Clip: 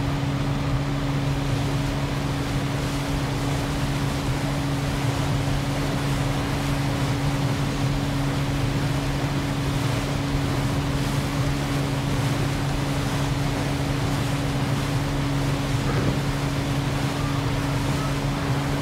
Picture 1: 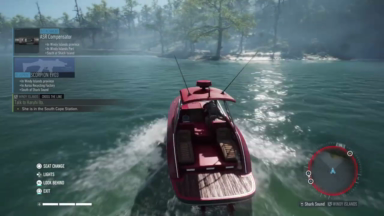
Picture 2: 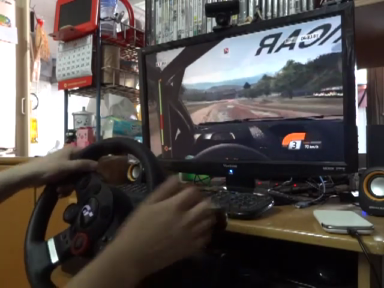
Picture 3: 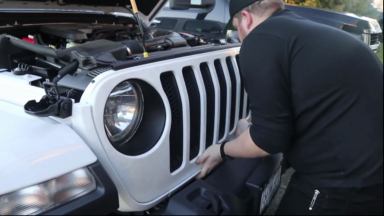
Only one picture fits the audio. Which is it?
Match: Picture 1